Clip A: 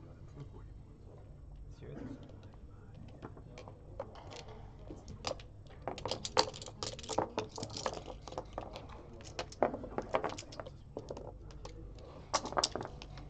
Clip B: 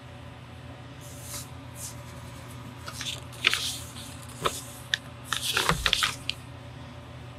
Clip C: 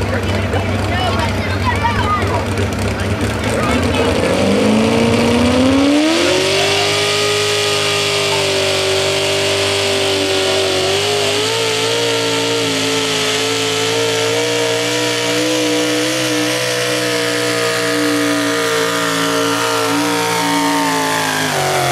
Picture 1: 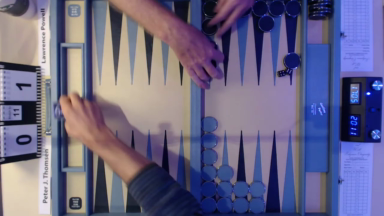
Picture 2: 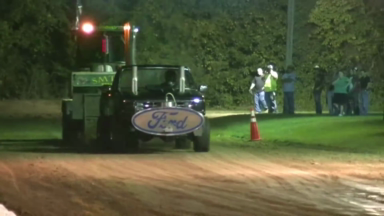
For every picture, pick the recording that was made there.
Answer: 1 A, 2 C